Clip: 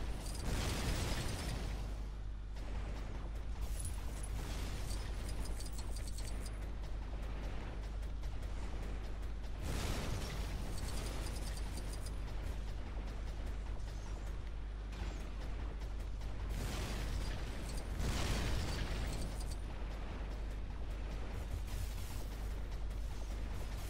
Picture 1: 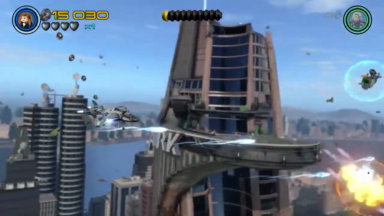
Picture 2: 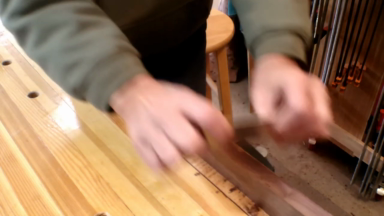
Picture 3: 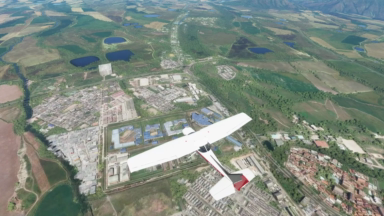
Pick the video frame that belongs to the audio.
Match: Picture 1